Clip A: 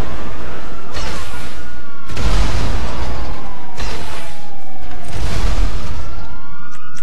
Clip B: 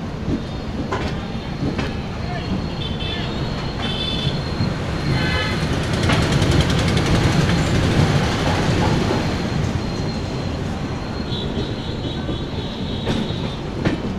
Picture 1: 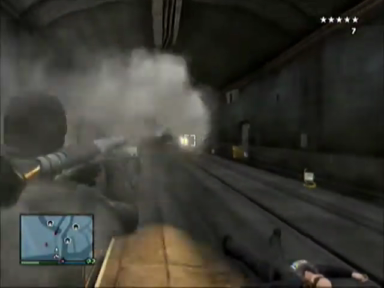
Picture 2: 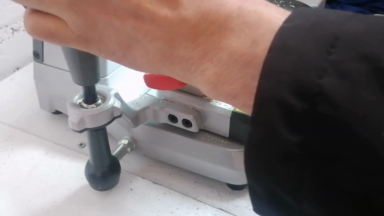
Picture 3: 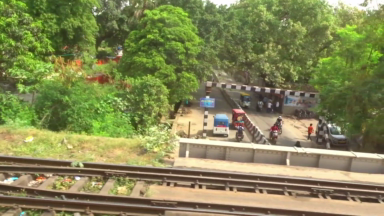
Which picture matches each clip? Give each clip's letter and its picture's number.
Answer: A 1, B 3